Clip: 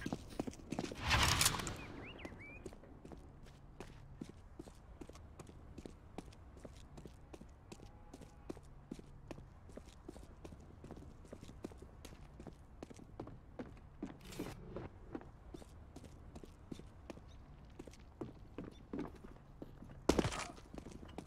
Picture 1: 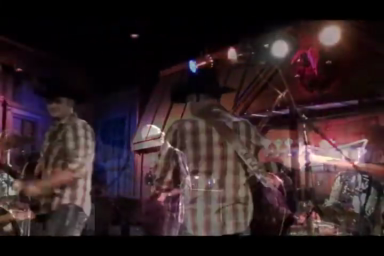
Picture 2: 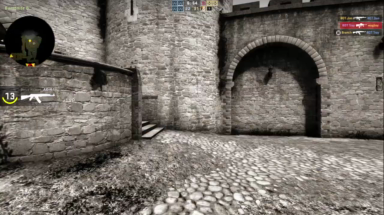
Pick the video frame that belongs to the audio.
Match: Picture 2